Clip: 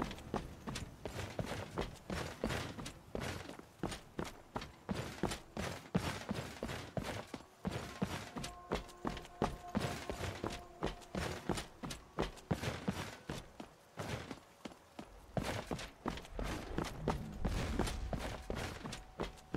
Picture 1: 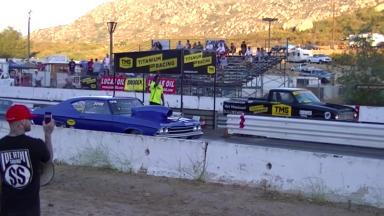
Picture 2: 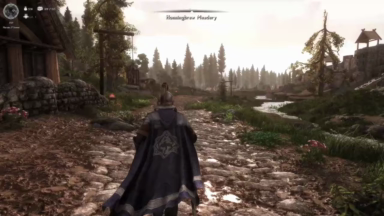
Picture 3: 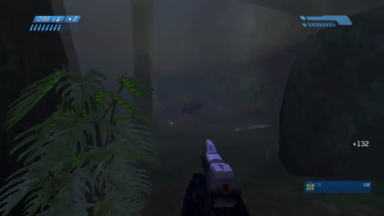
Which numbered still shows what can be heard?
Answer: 2